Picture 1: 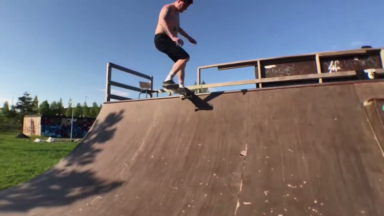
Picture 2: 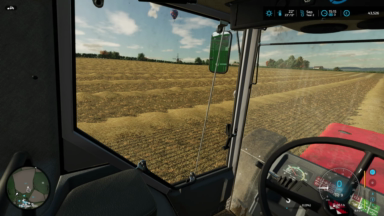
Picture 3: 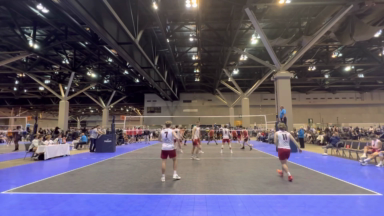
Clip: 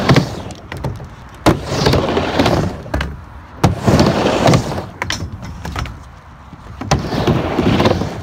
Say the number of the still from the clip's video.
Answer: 1